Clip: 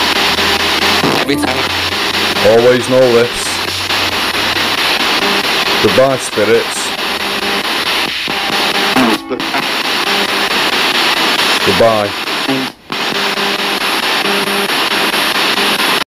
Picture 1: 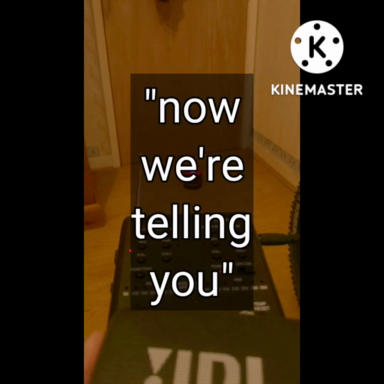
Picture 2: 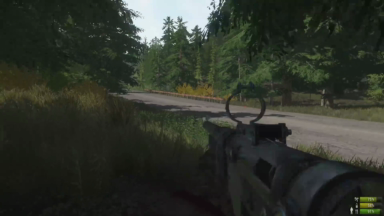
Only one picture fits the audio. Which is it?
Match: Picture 1